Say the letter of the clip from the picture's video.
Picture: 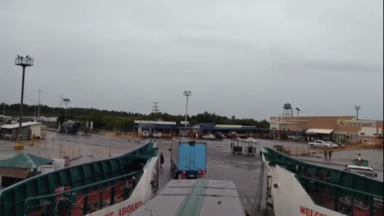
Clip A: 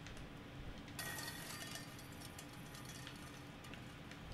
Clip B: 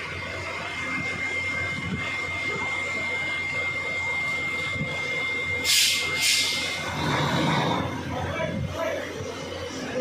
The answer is B